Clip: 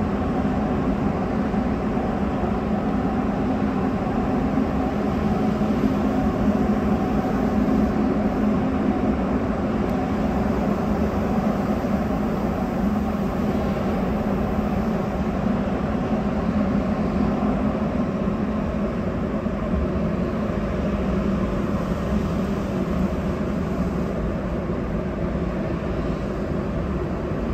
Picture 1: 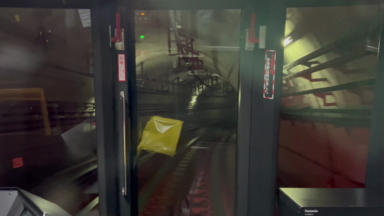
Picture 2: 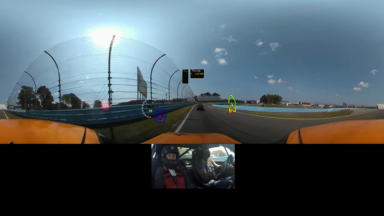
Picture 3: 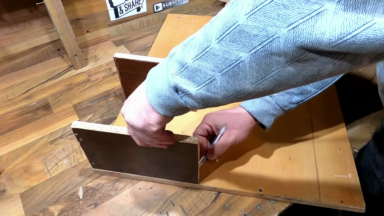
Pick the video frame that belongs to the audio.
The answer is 1